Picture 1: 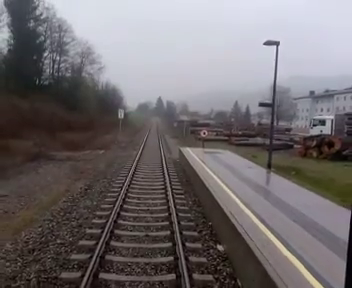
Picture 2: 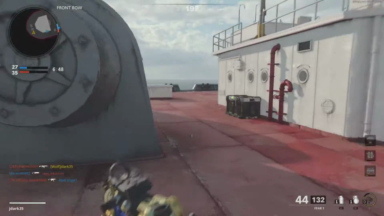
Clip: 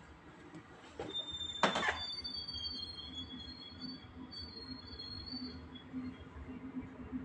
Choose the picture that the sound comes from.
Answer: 1